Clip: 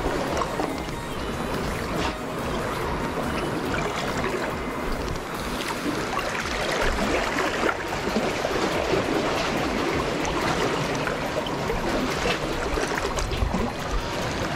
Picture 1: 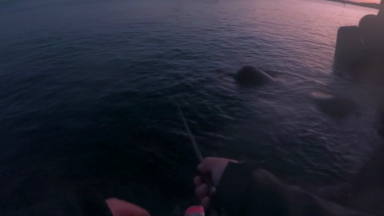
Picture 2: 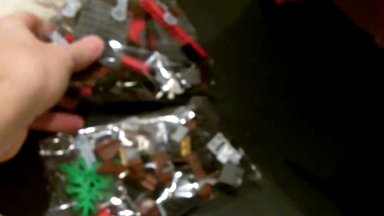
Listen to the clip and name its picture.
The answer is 1